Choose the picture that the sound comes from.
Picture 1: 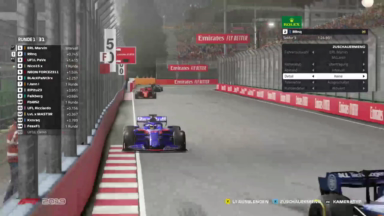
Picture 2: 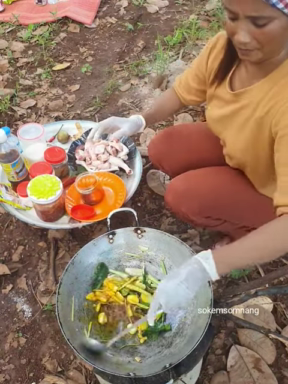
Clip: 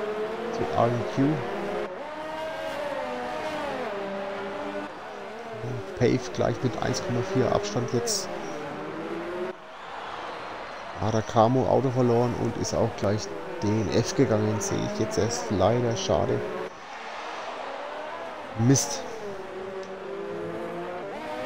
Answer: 1